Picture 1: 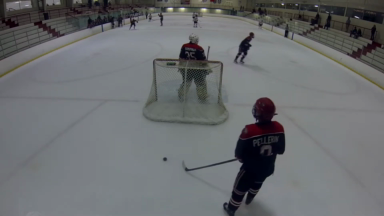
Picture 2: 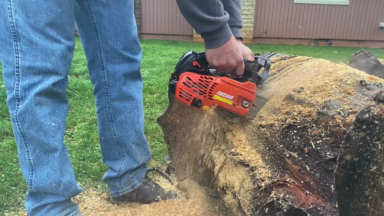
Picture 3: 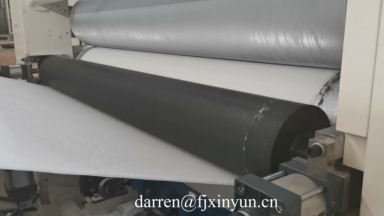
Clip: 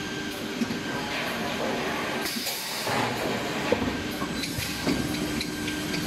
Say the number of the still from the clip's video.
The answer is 3